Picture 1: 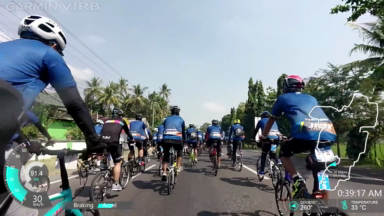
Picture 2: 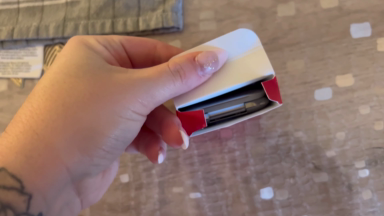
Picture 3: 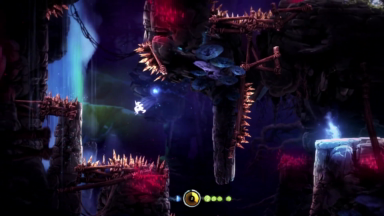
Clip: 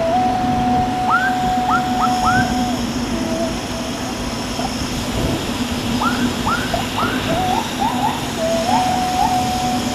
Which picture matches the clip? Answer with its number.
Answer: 1